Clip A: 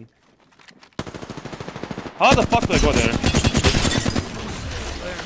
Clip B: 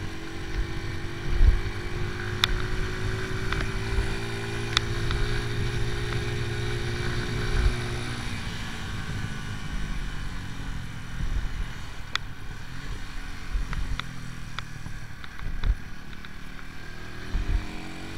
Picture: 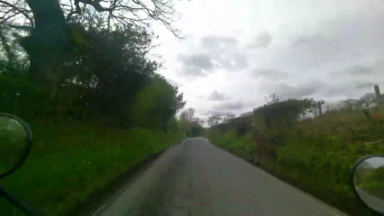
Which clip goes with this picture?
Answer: B